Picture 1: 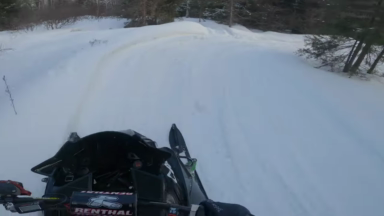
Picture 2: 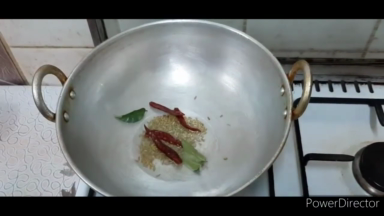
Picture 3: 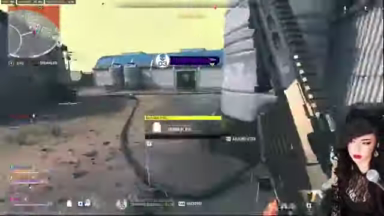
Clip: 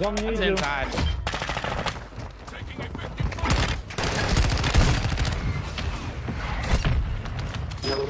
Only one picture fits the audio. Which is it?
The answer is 3